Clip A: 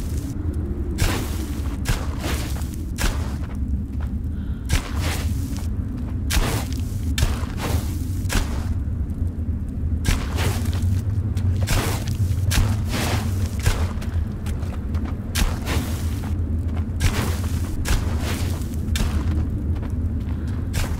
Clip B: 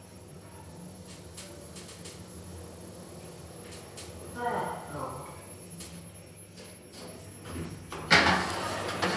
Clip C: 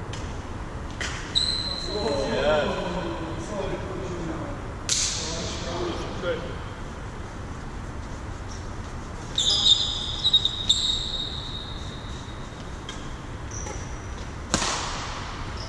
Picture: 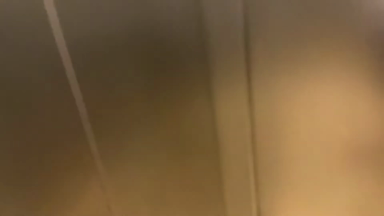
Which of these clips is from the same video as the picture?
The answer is B